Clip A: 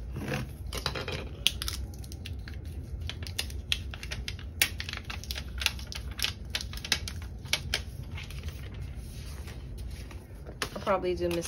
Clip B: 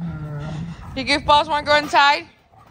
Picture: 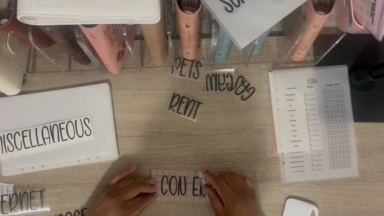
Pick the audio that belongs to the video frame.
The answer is A